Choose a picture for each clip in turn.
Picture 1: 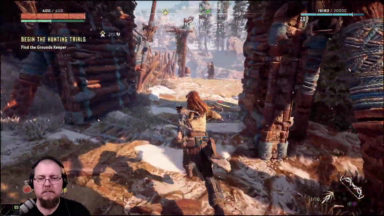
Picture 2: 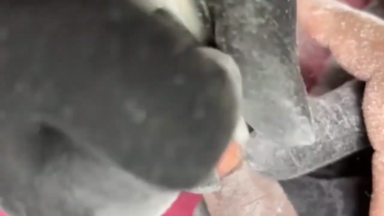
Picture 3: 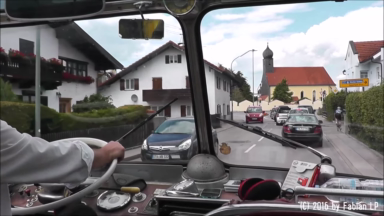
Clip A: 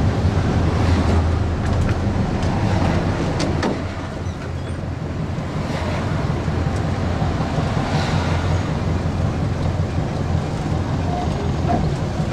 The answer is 3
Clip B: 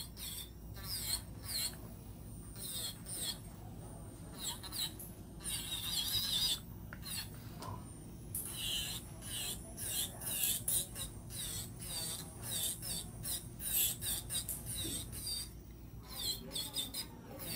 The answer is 2